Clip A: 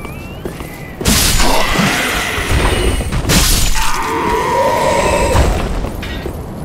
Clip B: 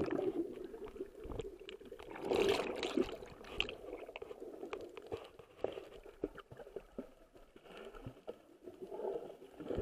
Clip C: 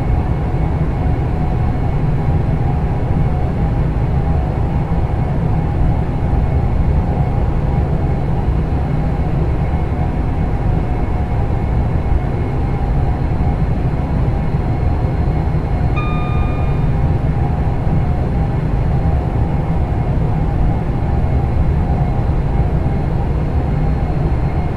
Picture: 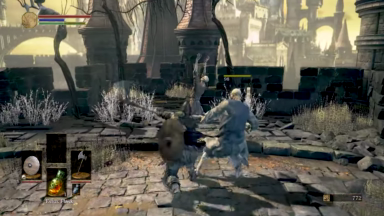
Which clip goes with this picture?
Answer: A